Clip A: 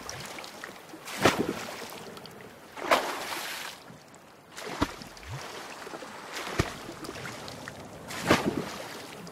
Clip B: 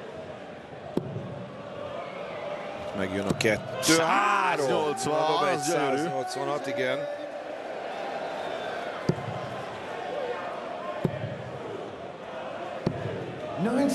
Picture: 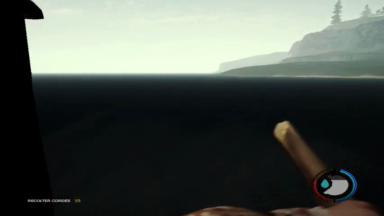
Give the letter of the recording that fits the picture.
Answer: A